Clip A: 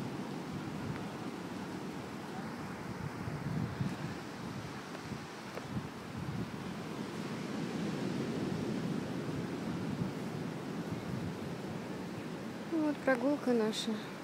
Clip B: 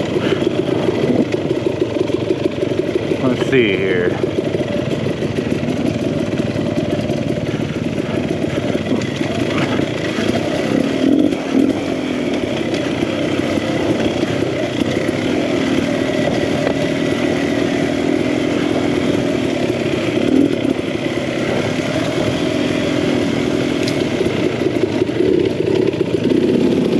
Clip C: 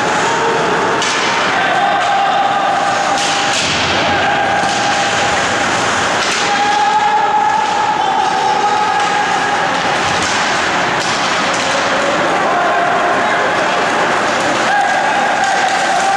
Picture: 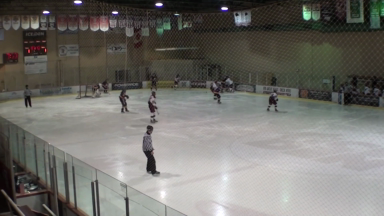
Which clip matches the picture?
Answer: C